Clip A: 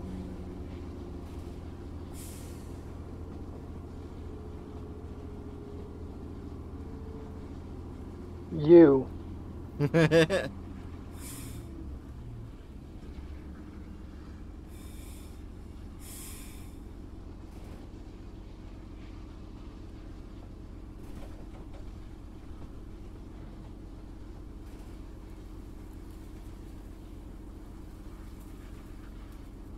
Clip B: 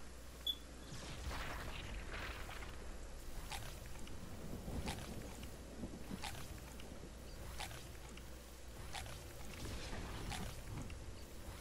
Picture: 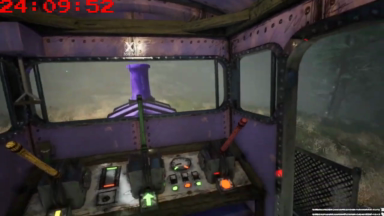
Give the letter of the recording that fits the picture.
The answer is A